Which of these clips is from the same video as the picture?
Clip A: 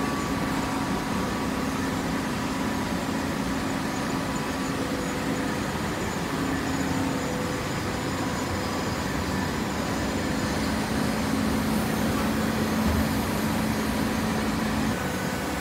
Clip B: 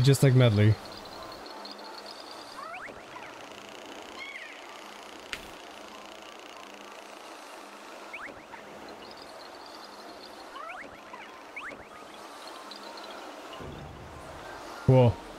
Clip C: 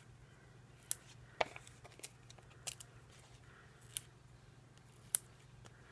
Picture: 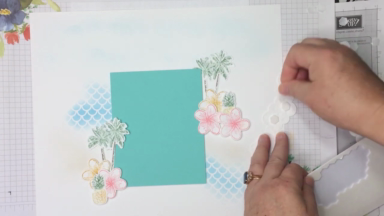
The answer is C